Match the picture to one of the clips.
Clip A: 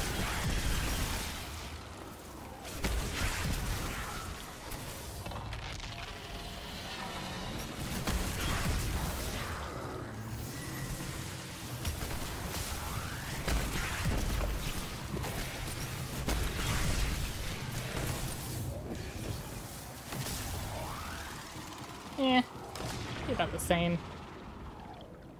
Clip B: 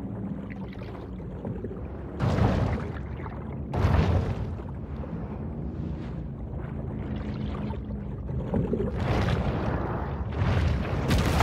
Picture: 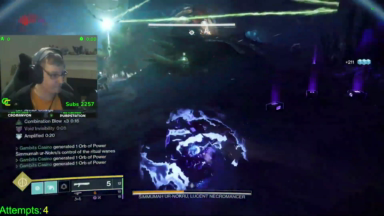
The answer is A